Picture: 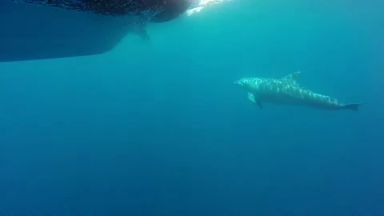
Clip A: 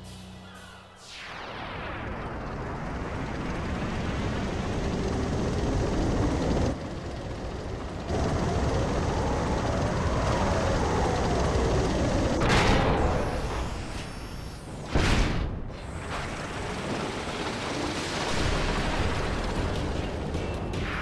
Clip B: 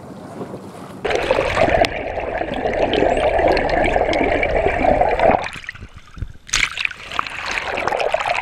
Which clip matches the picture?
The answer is B